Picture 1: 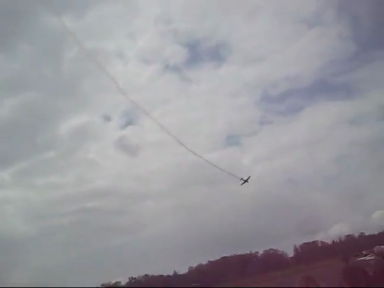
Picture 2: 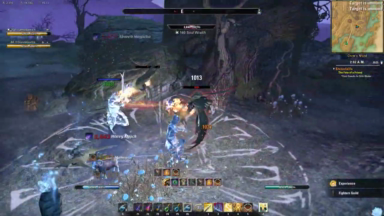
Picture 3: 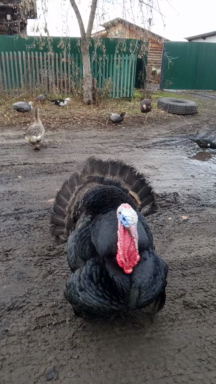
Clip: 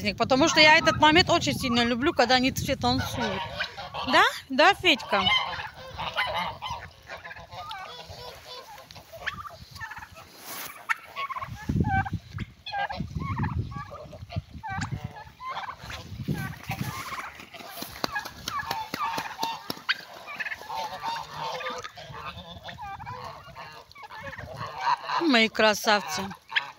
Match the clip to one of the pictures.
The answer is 3